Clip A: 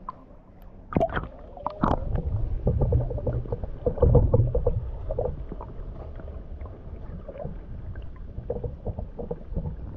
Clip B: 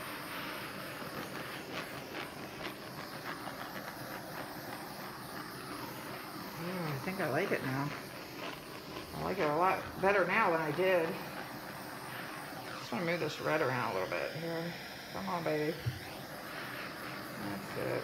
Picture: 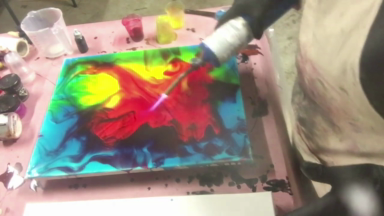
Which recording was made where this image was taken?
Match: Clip B